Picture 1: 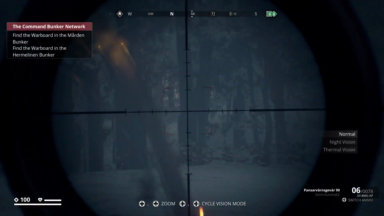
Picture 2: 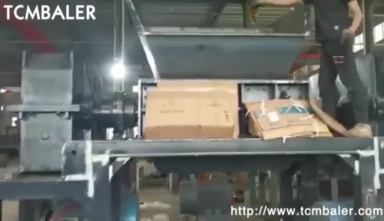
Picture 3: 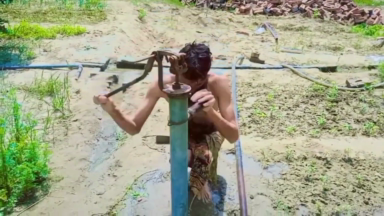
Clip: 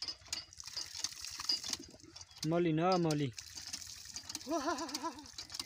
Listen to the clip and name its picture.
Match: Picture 3